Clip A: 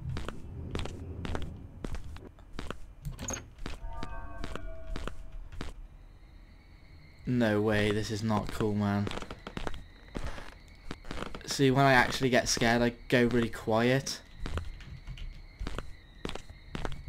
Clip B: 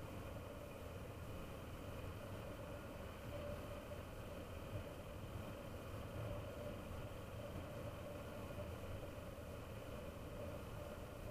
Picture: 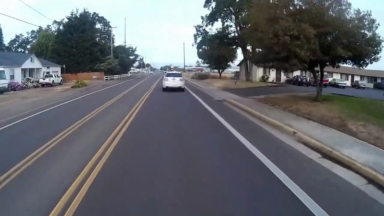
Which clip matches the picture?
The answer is B